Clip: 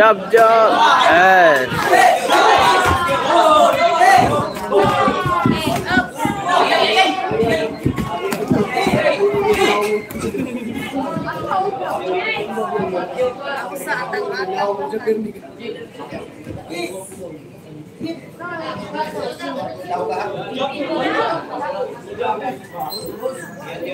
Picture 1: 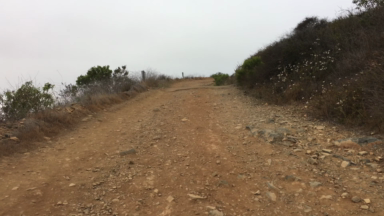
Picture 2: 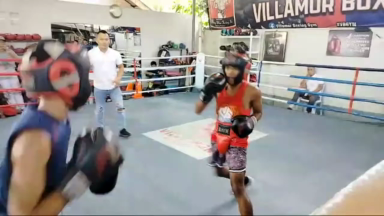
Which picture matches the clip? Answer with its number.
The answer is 2